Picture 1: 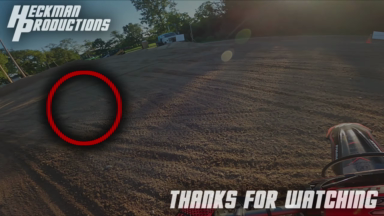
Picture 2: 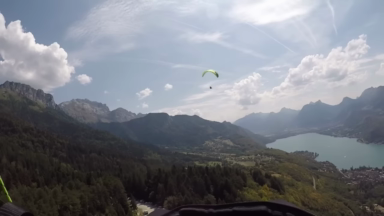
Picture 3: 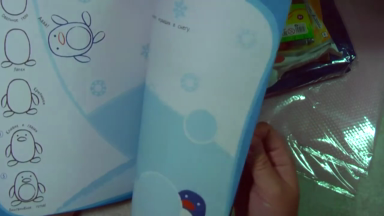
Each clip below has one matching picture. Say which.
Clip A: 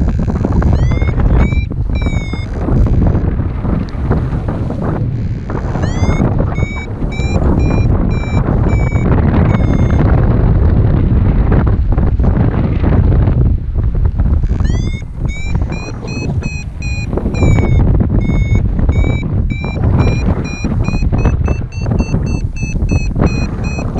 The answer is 2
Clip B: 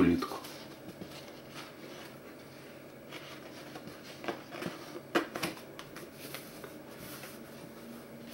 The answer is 3